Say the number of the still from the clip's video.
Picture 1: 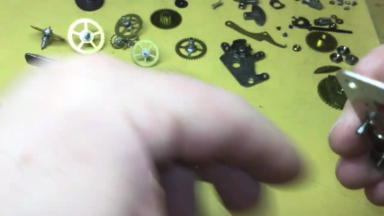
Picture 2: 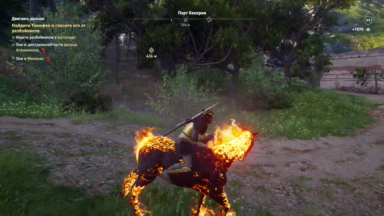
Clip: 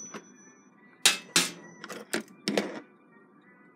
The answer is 1